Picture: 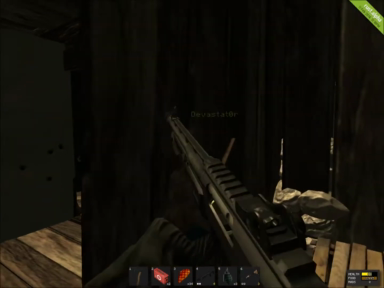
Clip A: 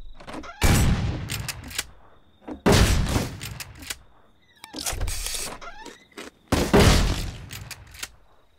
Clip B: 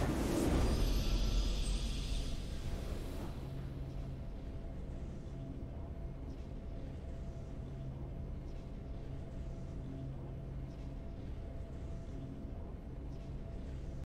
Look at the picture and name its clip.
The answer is A